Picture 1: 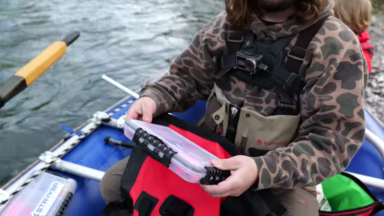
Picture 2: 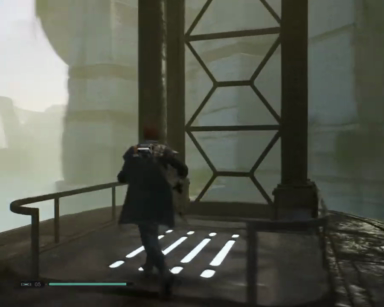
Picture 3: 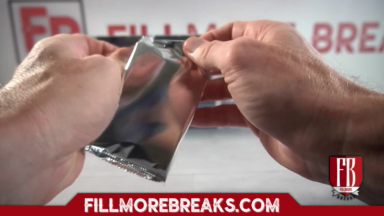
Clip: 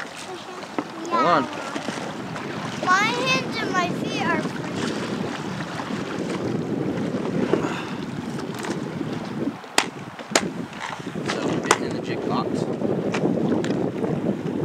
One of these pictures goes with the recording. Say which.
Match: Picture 1